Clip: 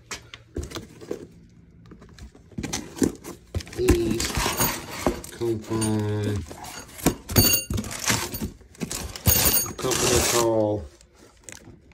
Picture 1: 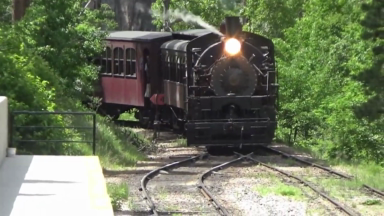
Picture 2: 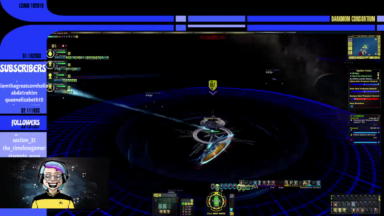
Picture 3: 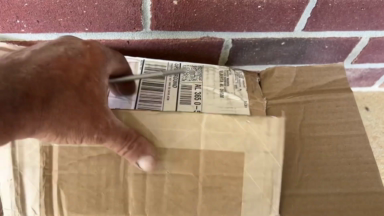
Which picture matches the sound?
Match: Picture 3